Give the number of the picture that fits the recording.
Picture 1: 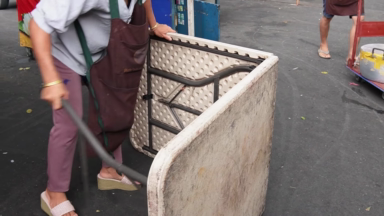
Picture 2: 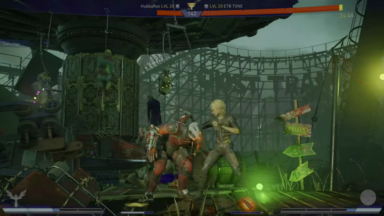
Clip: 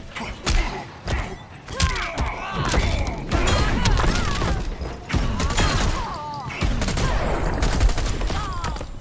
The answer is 2